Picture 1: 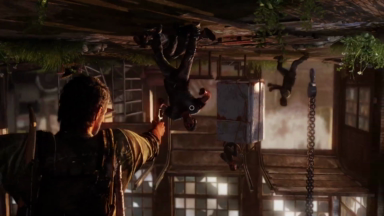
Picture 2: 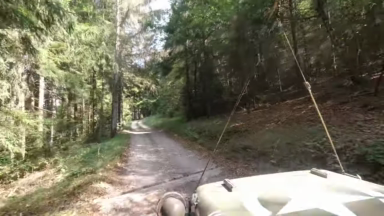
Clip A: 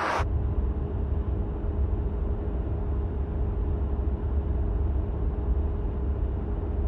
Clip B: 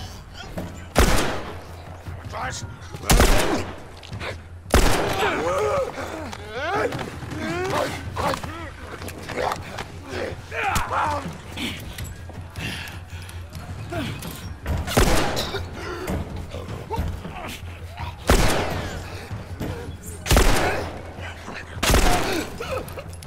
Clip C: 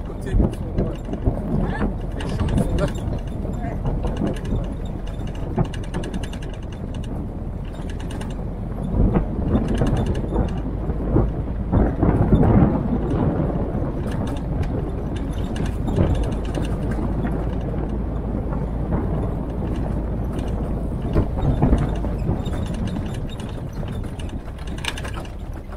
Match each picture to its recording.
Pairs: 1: B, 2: C